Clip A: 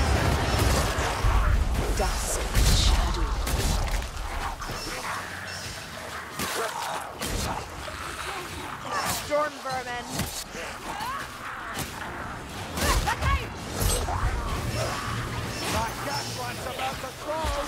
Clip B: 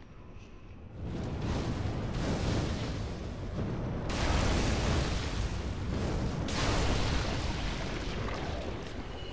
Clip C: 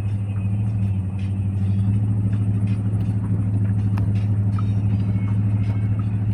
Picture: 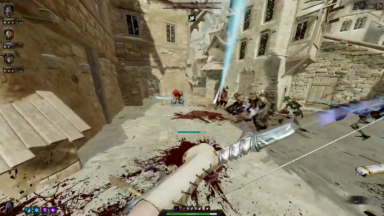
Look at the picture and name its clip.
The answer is A